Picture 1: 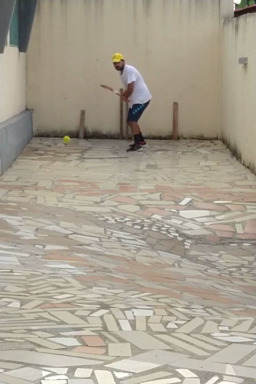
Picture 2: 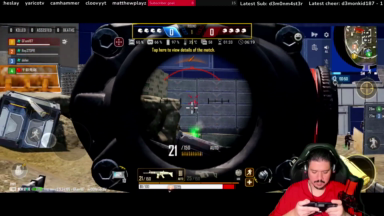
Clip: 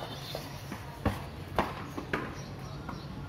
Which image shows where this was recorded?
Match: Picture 1